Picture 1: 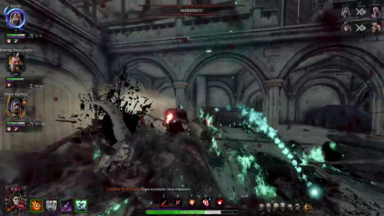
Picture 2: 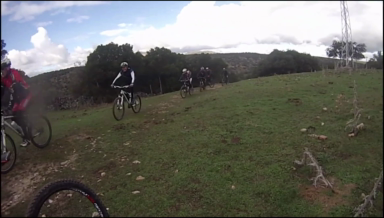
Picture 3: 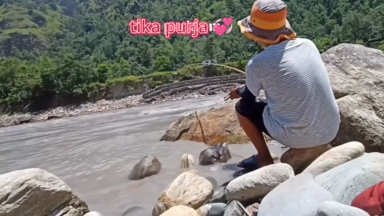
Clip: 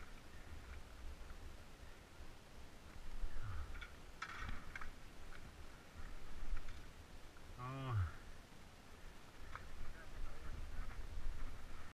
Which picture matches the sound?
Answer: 2